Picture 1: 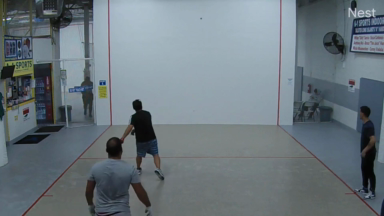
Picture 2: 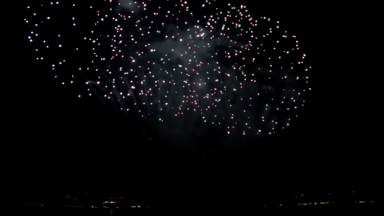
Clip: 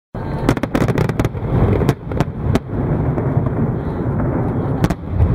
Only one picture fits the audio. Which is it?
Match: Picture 2